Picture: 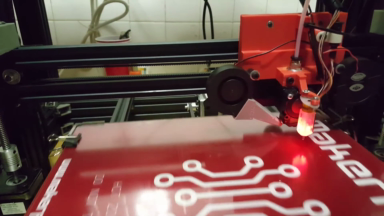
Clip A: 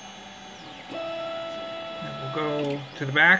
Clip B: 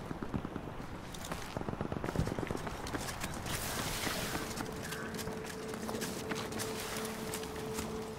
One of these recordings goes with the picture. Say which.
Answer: A